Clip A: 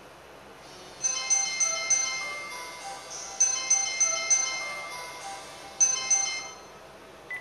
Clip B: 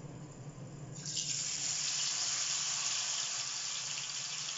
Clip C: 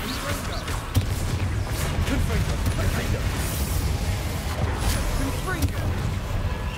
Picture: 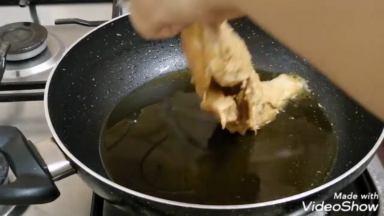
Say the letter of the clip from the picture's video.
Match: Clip B